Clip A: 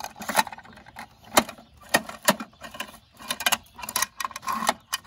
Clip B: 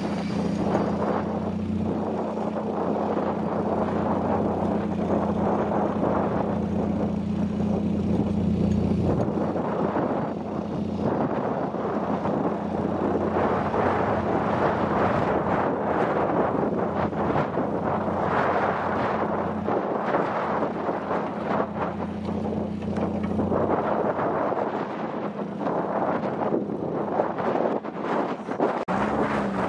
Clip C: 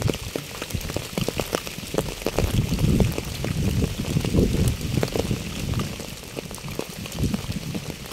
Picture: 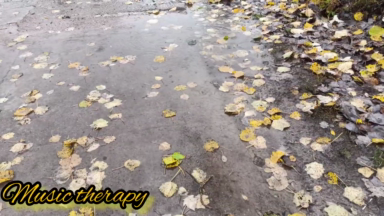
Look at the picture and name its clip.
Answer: C